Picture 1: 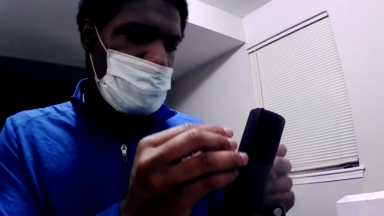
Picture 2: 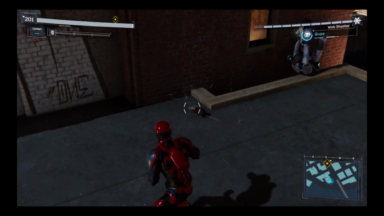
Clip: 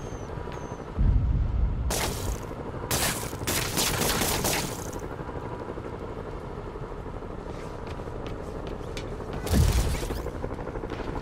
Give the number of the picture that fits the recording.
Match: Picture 2